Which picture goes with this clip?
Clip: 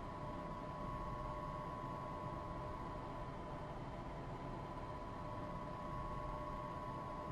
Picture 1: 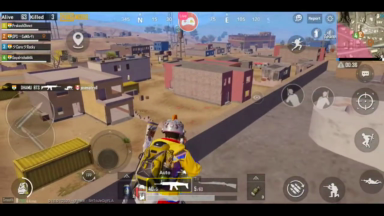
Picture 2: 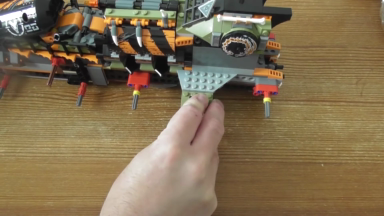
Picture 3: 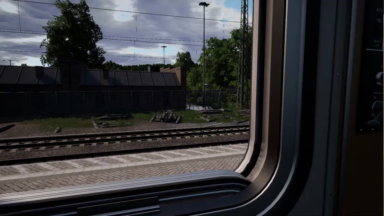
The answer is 3